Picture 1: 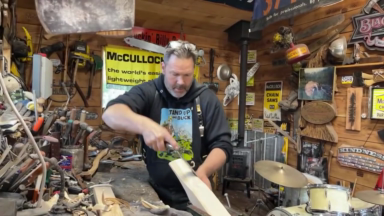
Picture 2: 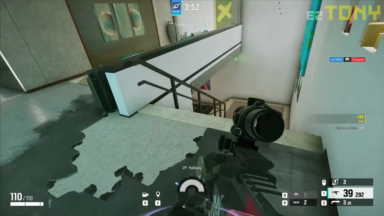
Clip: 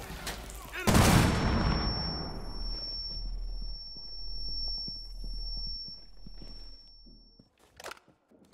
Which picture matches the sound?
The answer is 2